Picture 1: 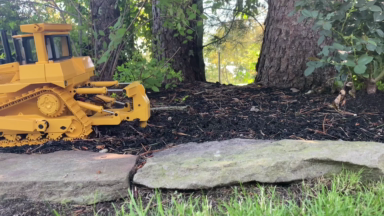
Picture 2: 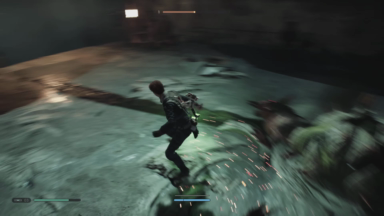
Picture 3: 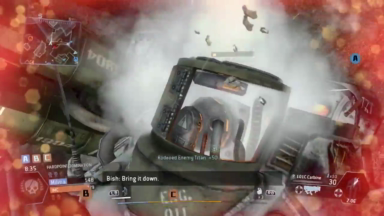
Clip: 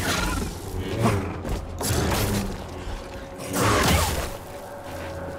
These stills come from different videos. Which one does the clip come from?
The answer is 2